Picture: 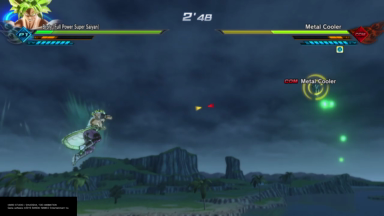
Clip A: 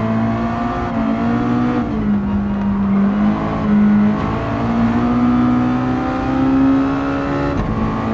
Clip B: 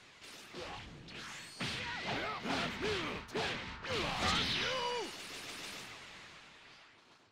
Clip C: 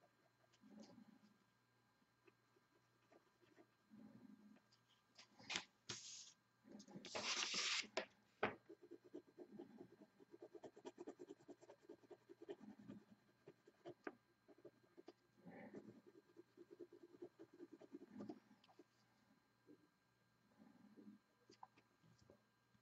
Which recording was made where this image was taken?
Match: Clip B